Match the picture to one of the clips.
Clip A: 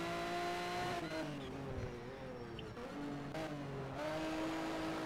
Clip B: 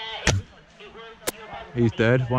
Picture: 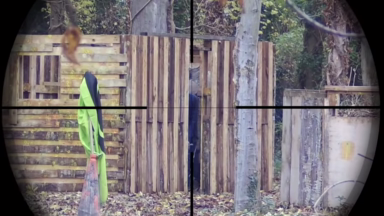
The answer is B